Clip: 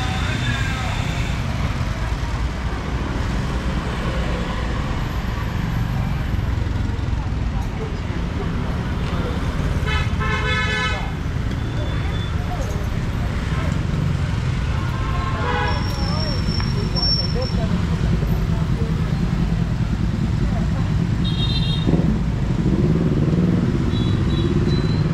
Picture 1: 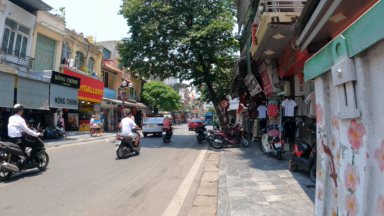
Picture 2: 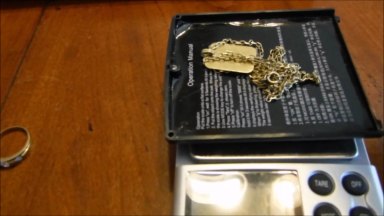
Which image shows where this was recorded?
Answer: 1